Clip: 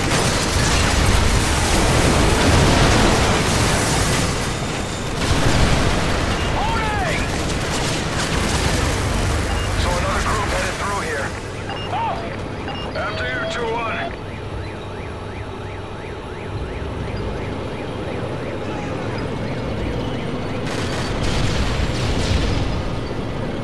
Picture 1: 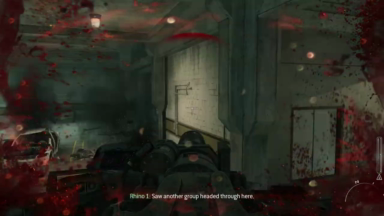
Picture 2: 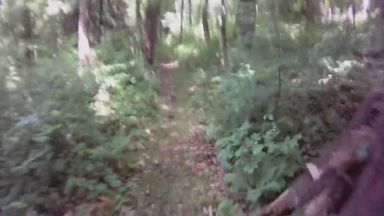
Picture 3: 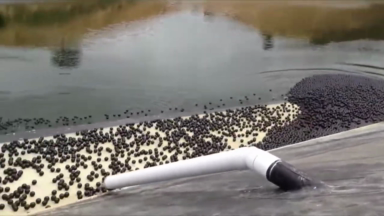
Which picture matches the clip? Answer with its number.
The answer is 1